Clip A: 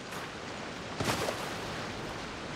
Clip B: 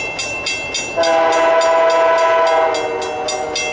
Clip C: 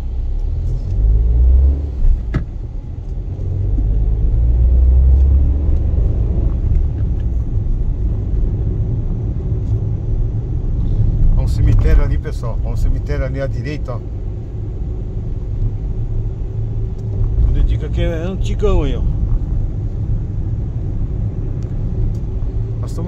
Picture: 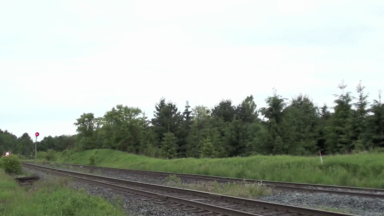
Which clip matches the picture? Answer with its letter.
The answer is B